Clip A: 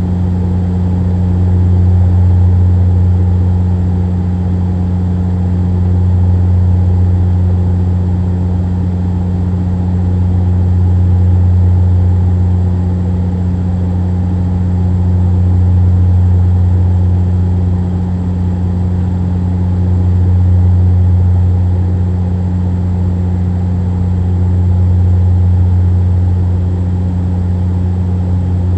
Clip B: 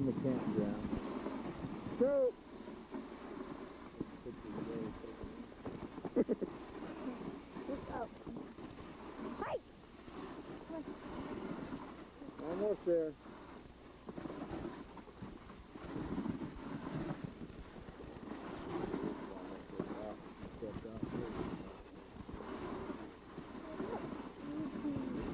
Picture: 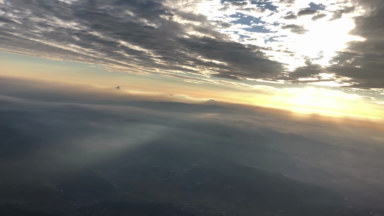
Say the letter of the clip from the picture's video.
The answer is A